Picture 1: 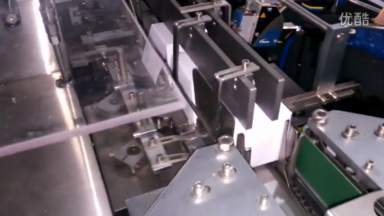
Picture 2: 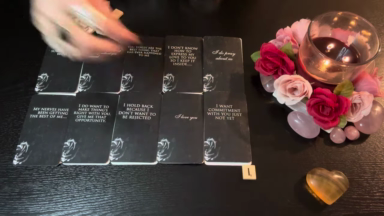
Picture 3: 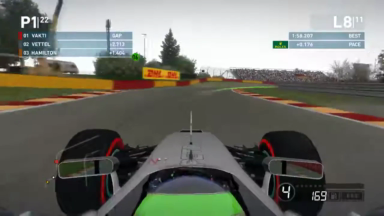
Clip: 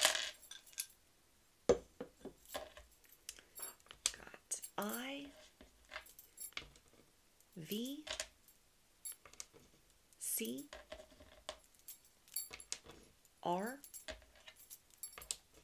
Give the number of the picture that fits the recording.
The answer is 2